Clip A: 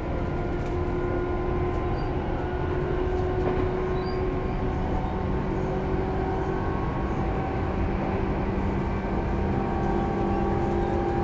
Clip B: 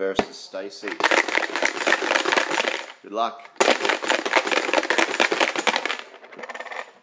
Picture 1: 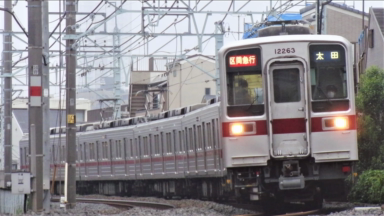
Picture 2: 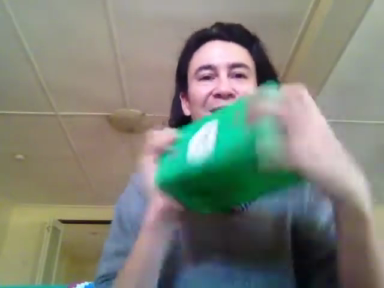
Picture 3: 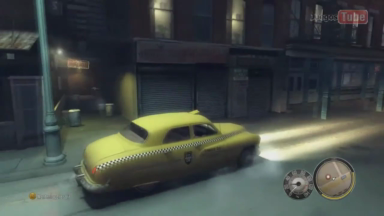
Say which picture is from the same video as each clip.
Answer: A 1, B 2